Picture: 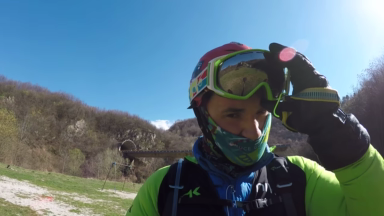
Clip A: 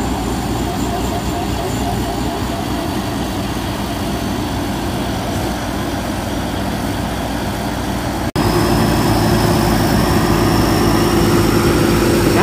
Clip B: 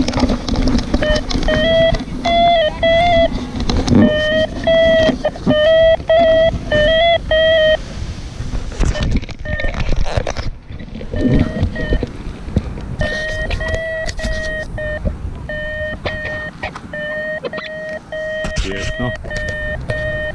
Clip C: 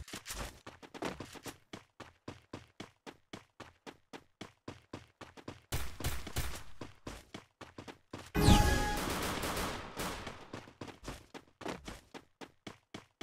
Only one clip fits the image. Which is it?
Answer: B